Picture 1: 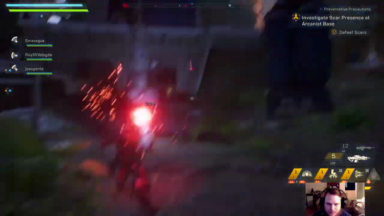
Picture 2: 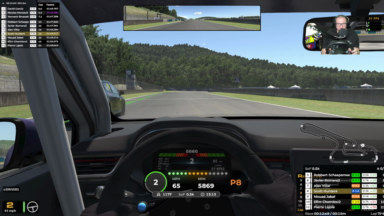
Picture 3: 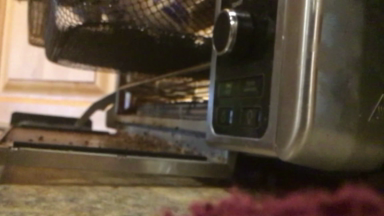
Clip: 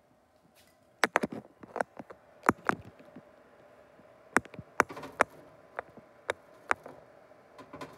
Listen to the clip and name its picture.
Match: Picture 3